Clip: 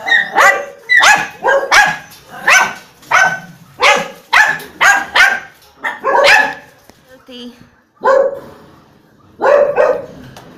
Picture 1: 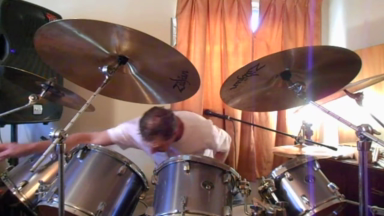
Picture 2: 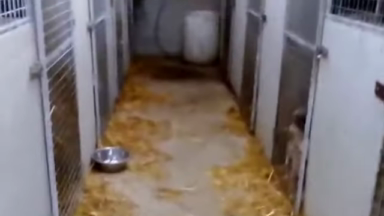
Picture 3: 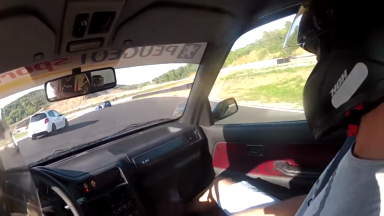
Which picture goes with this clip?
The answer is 2